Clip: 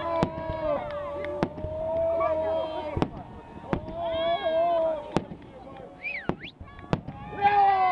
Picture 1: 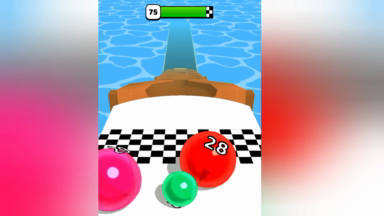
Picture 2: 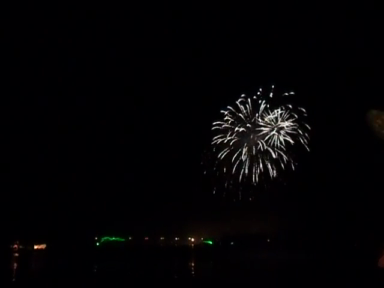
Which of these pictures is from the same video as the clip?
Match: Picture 2